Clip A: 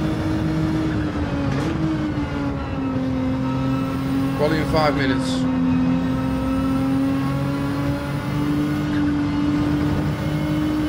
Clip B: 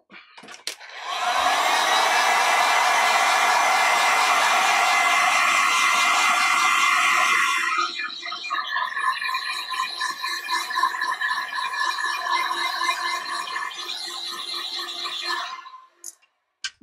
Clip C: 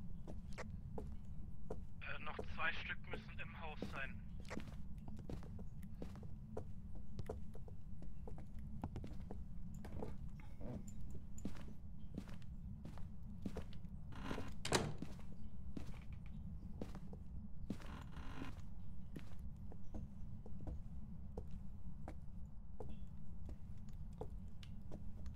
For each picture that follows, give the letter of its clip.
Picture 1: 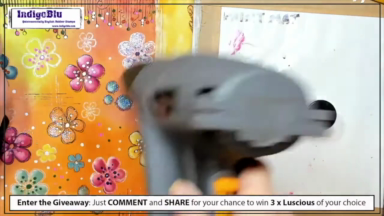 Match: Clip B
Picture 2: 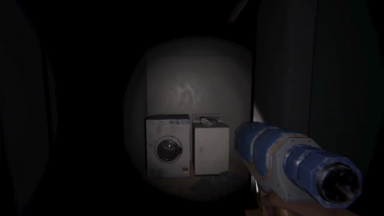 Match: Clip C